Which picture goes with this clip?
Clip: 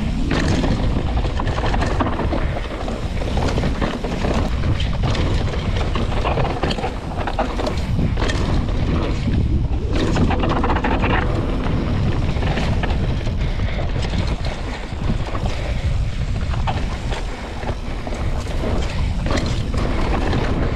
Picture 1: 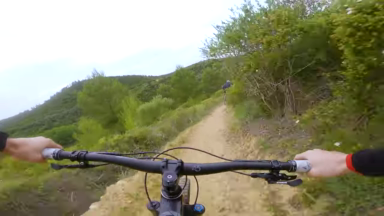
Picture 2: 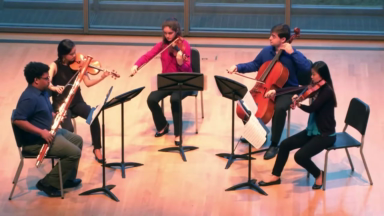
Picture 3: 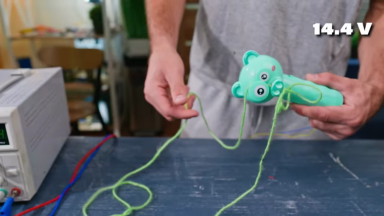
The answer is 1